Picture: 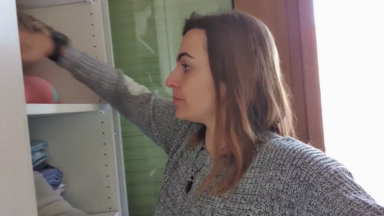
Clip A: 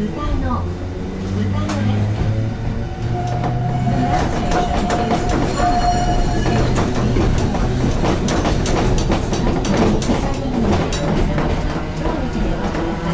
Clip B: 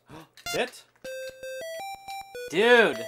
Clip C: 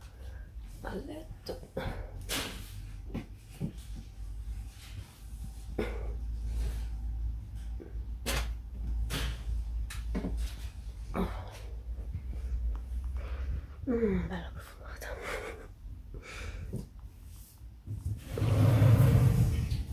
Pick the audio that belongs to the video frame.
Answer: C